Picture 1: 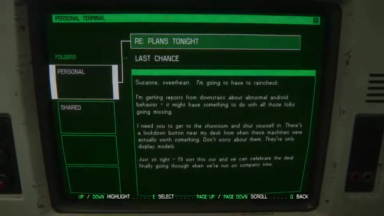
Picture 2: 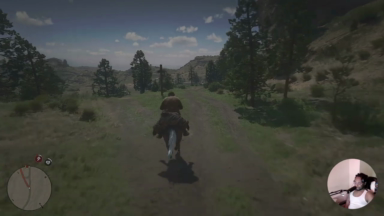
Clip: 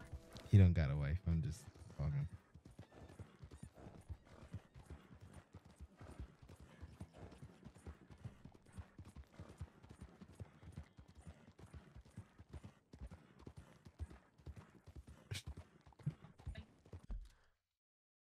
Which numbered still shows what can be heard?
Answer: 2